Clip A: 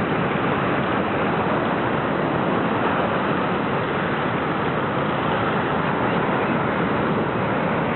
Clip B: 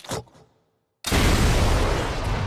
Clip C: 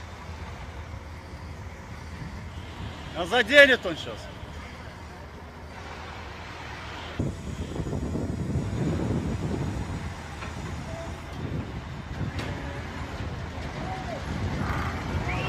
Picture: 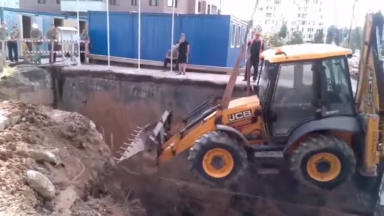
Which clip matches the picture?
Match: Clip C